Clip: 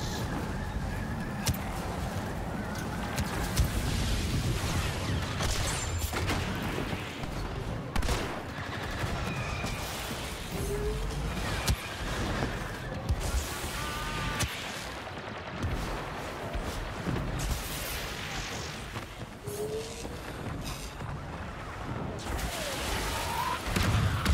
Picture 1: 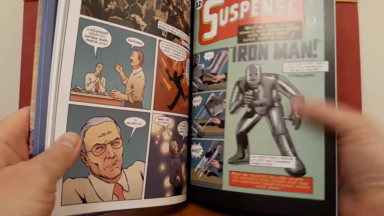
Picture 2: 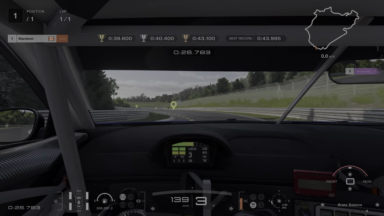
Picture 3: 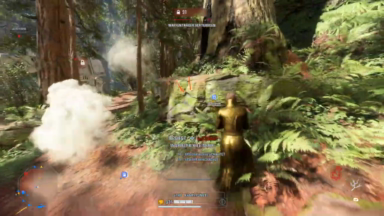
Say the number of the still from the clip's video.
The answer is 3